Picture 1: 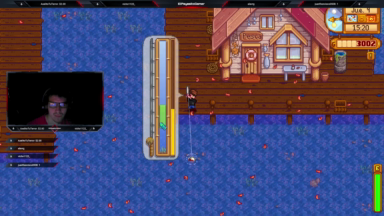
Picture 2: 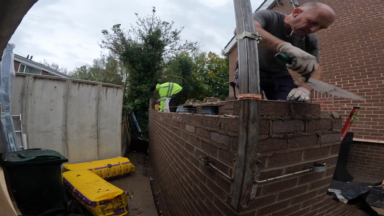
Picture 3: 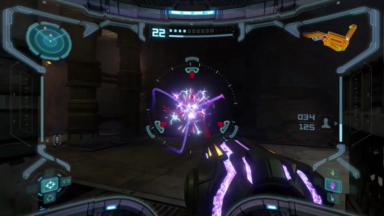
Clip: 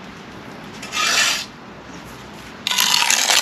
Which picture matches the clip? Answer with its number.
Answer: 2